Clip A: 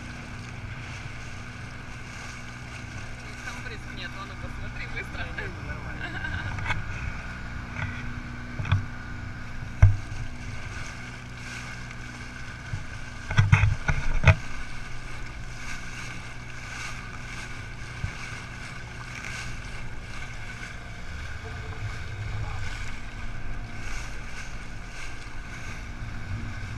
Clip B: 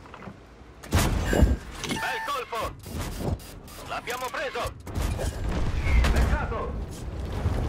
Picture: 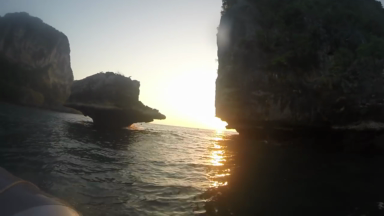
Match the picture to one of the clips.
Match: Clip A